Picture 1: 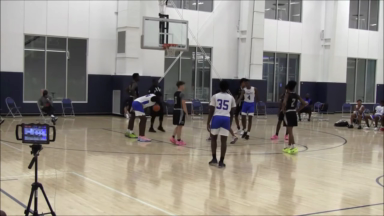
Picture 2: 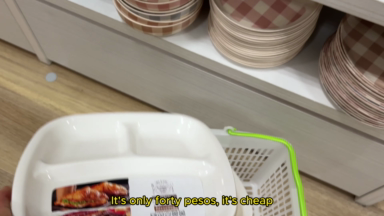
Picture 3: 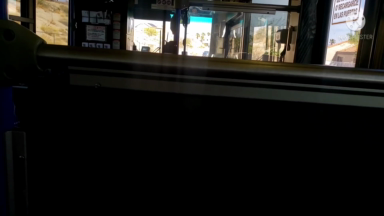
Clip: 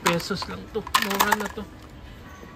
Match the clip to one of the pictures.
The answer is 2